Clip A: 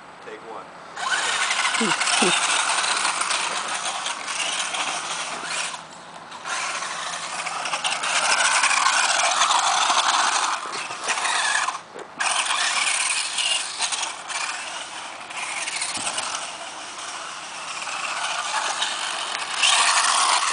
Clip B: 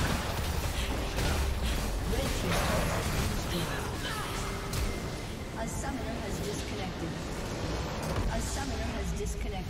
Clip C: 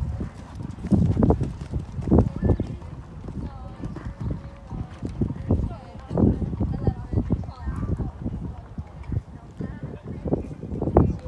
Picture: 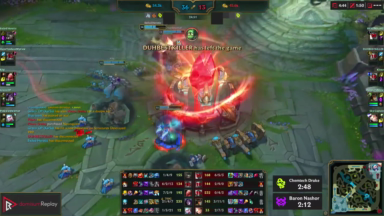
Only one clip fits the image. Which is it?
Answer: B